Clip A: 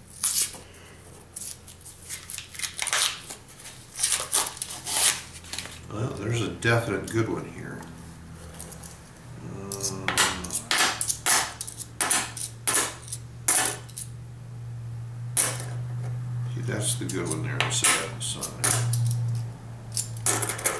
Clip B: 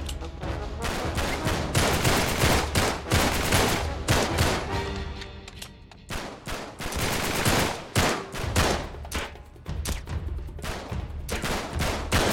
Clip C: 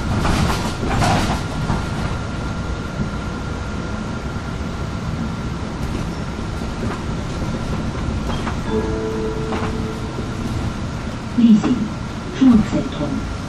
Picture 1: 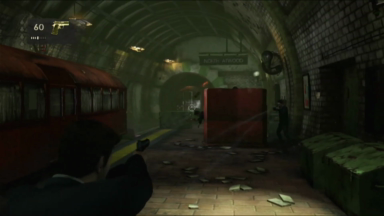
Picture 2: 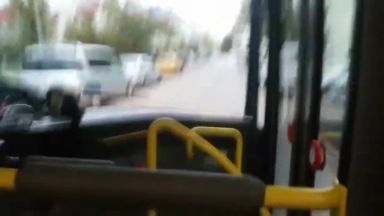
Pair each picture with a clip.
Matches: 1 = B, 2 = C